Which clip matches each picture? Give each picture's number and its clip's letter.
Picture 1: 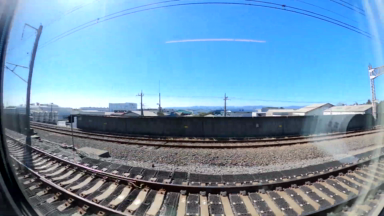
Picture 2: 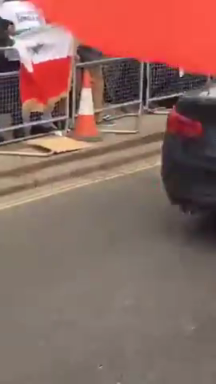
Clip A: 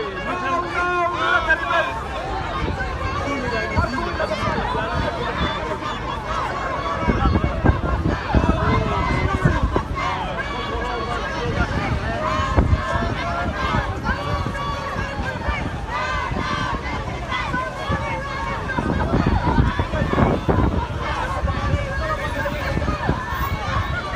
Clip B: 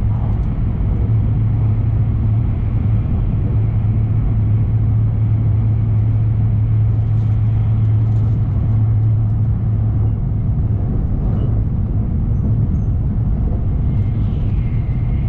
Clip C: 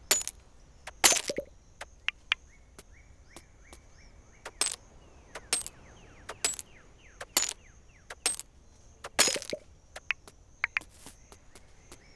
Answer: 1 B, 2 A